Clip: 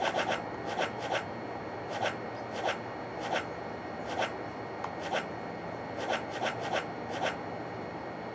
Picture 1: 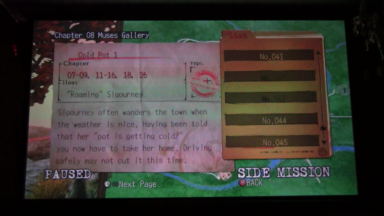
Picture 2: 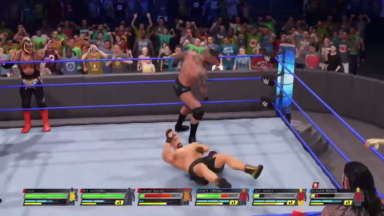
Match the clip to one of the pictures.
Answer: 1